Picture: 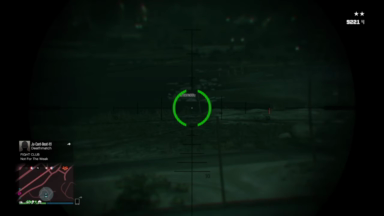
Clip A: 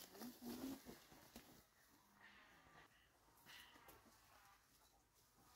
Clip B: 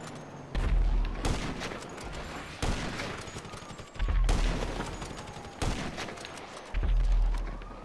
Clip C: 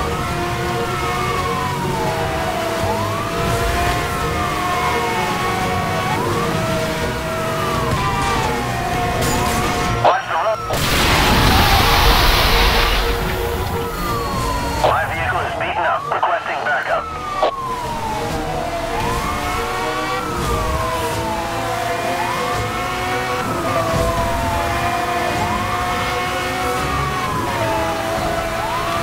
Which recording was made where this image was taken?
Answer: B